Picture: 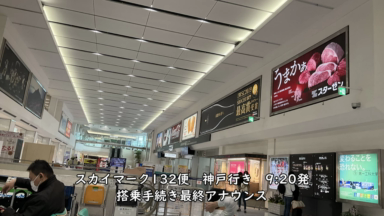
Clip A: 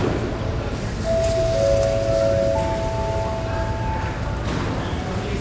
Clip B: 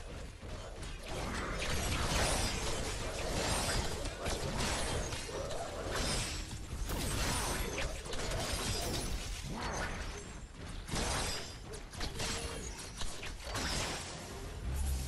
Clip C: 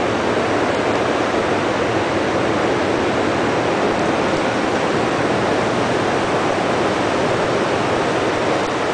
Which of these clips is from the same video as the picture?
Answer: A